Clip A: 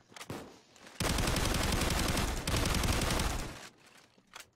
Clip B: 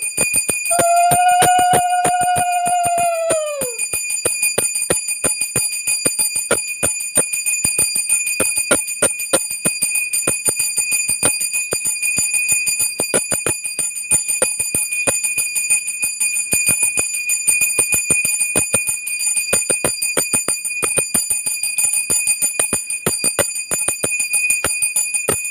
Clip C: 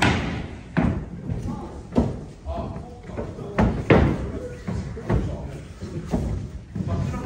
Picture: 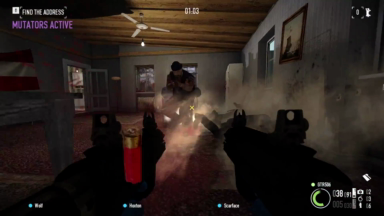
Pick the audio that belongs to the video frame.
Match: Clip A